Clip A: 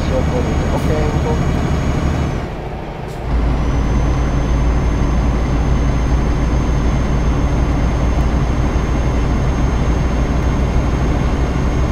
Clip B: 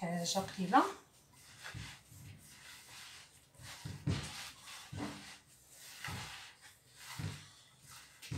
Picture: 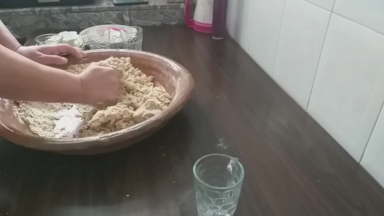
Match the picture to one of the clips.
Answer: B